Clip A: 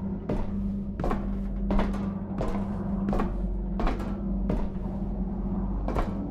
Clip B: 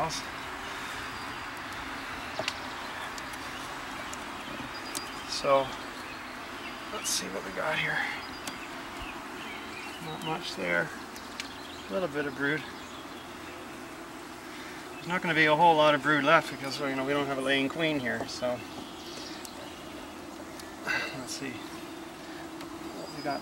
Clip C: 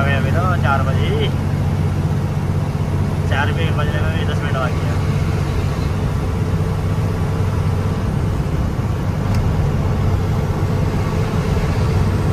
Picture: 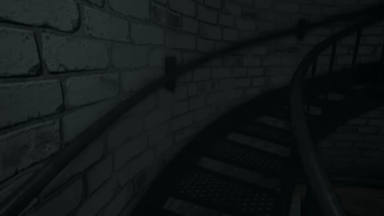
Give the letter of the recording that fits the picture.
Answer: A